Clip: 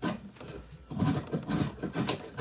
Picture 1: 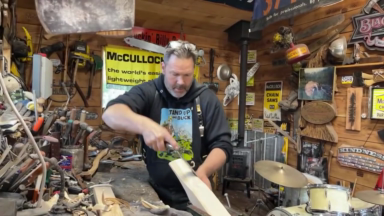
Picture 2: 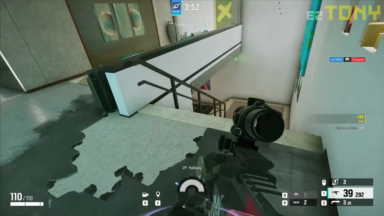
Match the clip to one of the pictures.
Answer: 1